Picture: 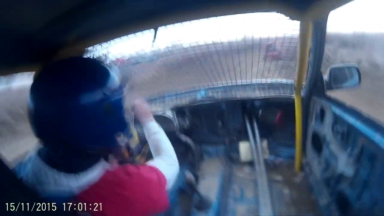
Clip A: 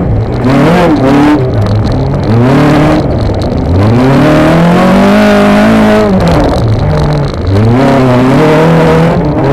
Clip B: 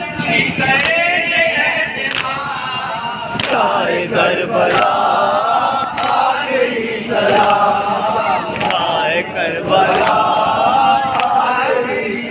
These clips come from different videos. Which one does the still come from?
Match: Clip A